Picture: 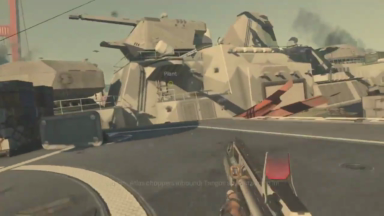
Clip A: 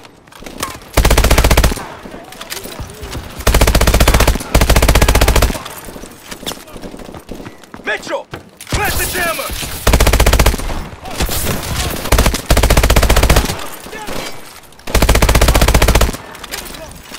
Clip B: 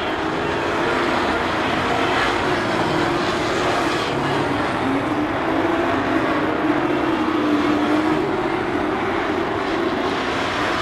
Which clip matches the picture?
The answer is A